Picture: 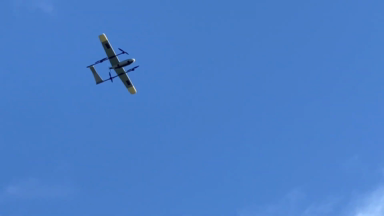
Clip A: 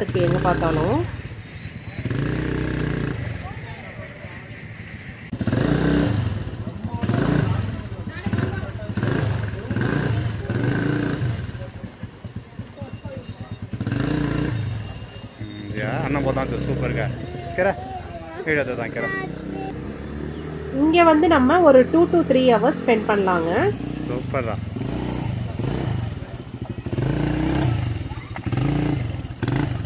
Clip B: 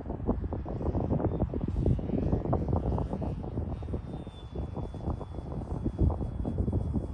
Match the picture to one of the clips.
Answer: B